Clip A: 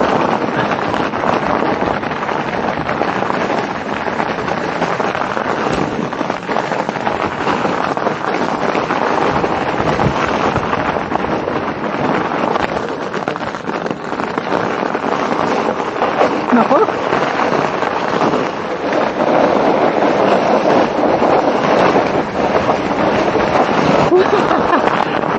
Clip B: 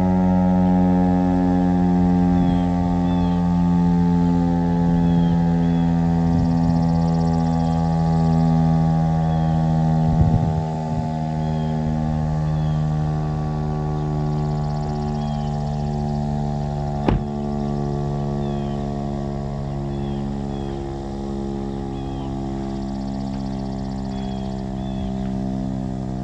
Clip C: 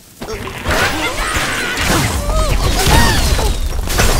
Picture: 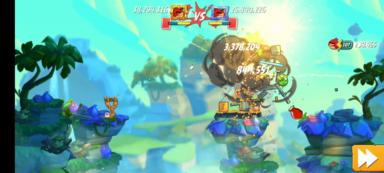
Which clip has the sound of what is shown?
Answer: C